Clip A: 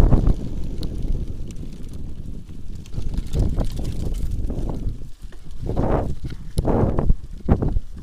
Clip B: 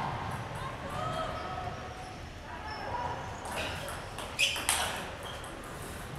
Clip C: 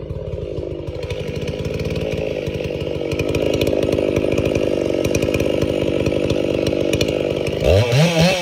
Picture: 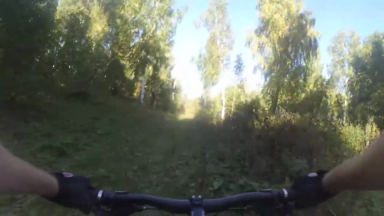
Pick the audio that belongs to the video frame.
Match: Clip A